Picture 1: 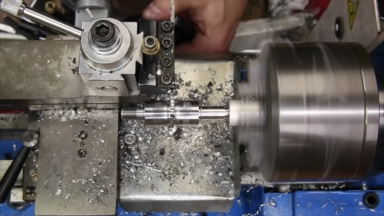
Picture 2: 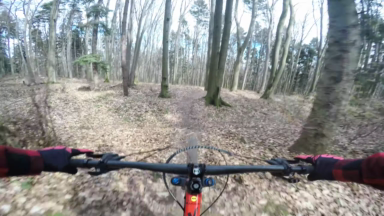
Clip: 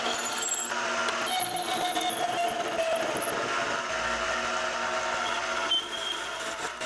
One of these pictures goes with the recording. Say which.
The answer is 1